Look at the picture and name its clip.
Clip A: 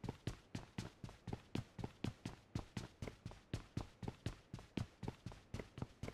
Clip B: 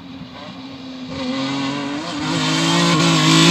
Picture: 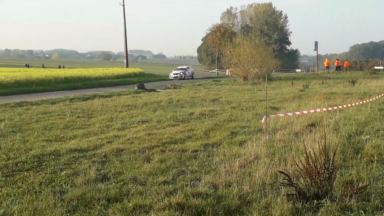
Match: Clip B